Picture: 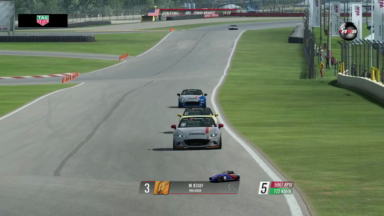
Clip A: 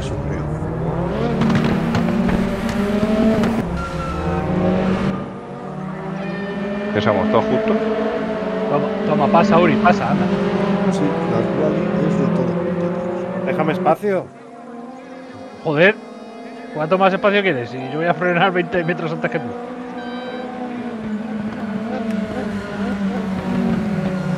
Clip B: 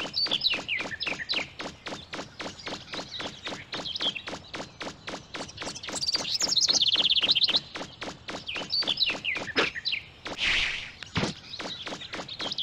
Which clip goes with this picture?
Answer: A